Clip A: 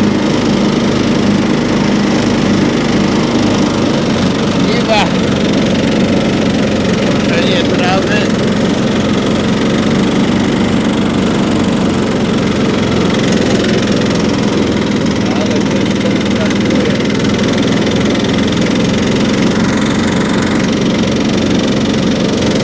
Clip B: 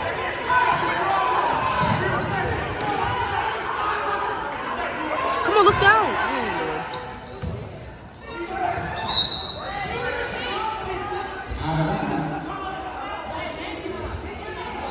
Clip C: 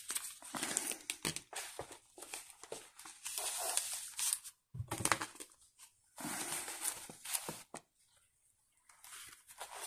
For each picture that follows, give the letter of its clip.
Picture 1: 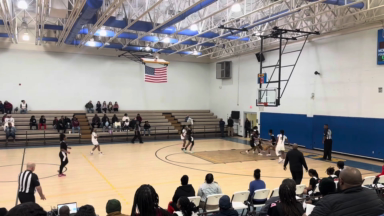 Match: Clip B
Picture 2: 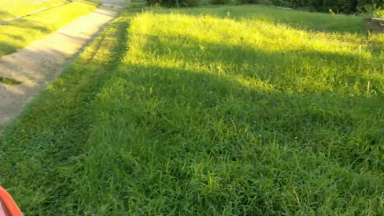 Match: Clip A